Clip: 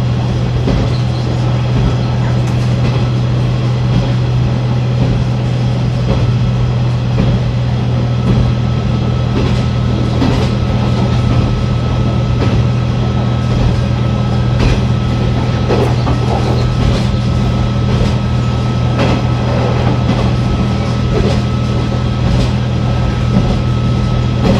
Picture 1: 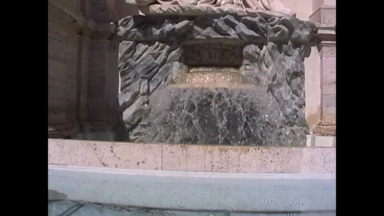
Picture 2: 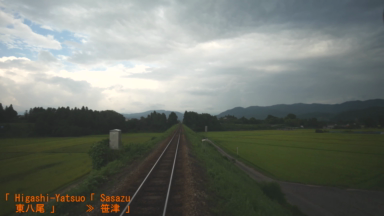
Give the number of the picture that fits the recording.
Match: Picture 2